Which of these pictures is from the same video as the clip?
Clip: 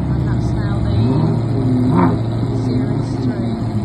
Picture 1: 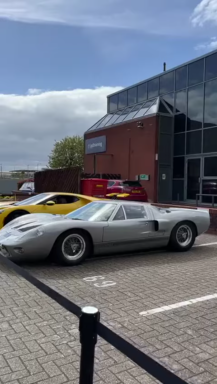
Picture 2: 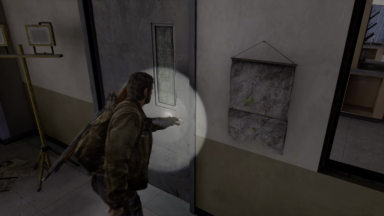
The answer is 1